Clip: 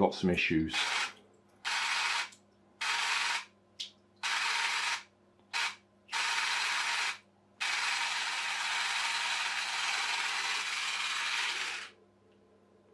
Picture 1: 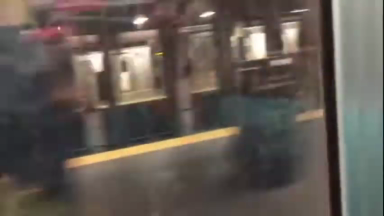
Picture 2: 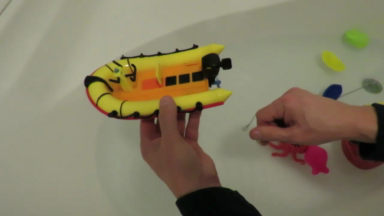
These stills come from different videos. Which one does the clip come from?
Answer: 2